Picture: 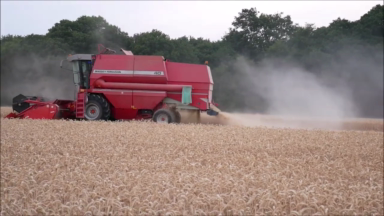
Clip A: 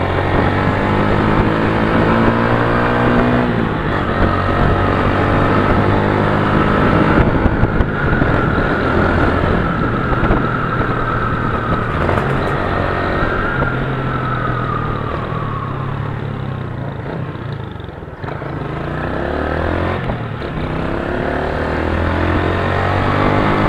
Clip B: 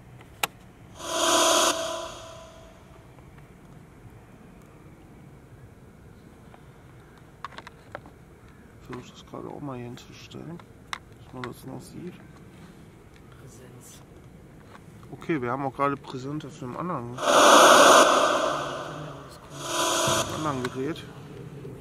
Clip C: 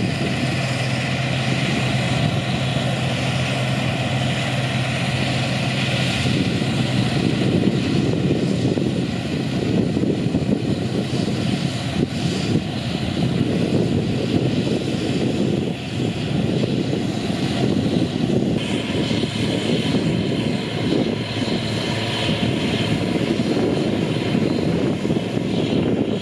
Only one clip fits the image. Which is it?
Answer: C